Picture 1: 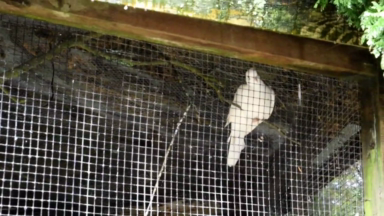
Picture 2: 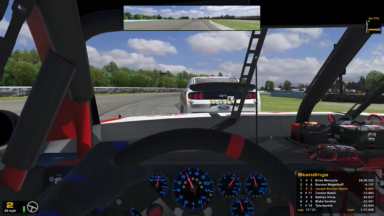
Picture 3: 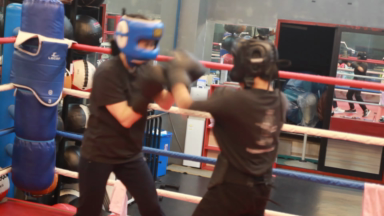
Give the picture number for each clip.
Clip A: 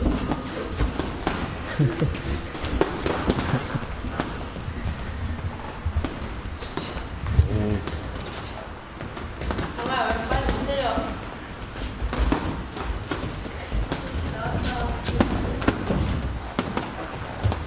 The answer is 3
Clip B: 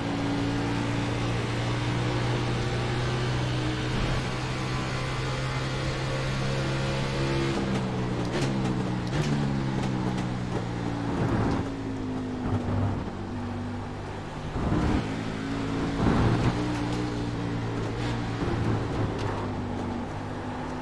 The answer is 2